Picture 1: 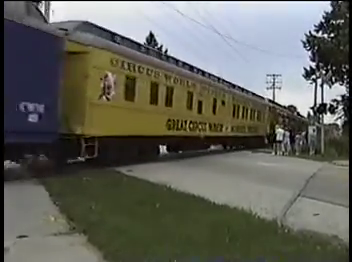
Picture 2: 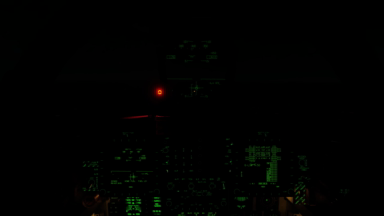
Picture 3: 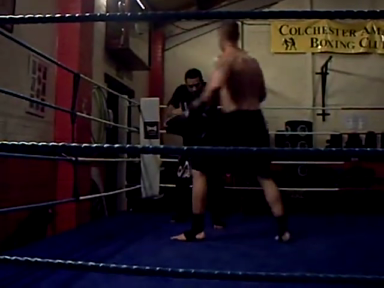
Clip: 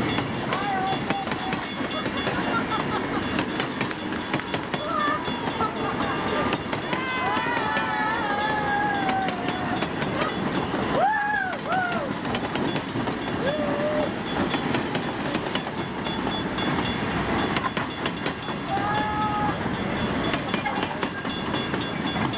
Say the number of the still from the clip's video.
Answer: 1